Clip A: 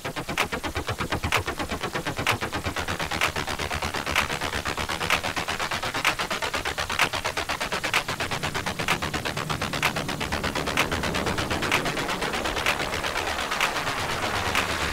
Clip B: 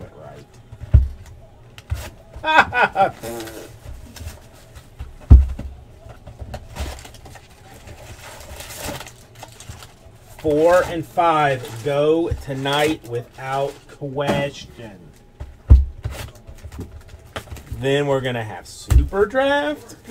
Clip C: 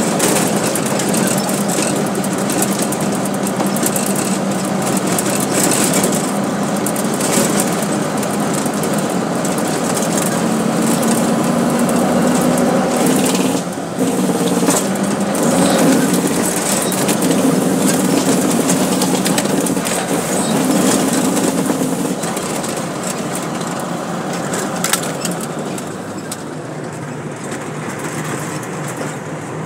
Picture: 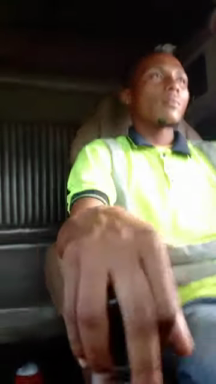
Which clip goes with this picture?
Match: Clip C